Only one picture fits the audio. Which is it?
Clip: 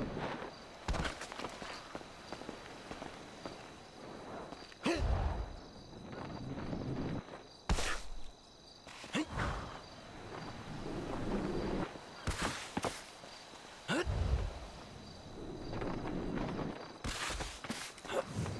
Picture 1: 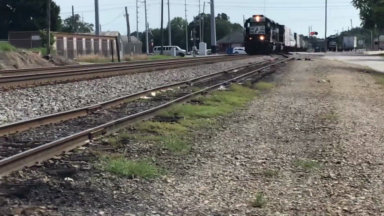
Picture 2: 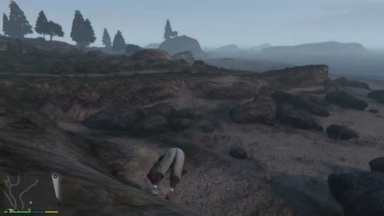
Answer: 2